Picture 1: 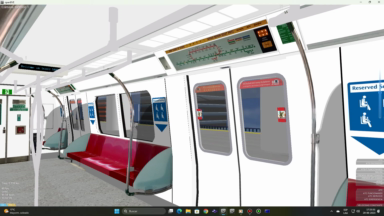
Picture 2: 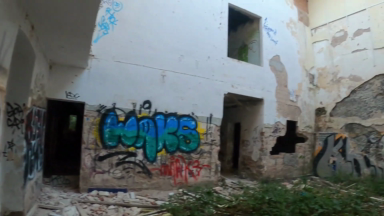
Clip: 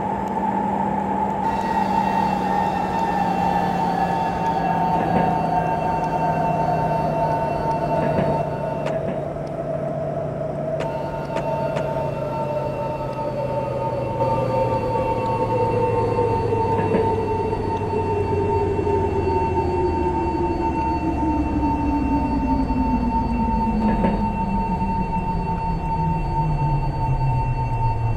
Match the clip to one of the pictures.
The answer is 1